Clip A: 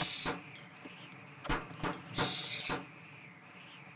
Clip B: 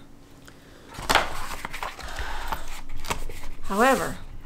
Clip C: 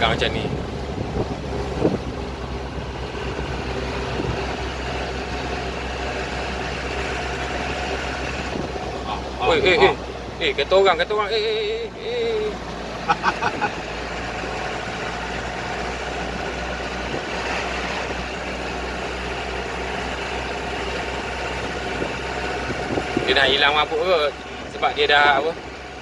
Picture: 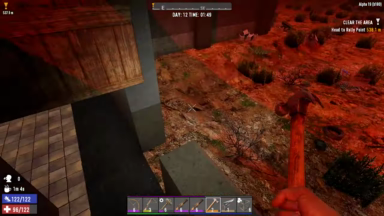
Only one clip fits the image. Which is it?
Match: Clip A